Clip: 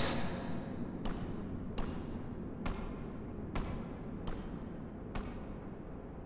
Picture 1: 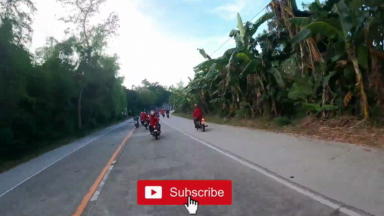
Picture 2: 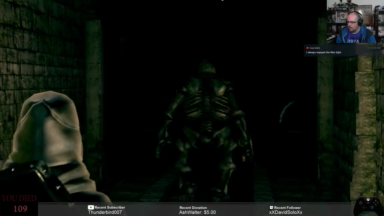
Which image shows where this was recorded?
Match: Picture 2